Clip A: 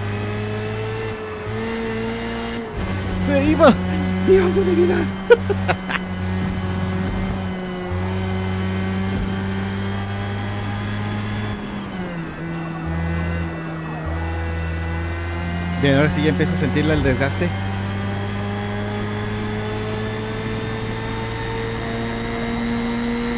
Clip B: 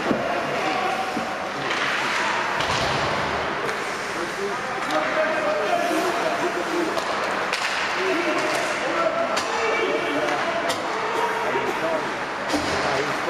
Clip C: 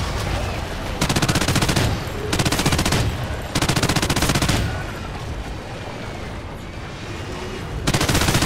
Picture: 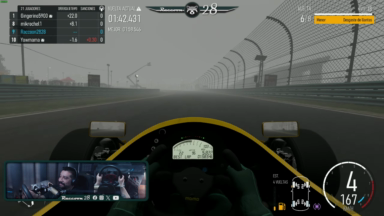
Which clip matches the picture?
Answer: A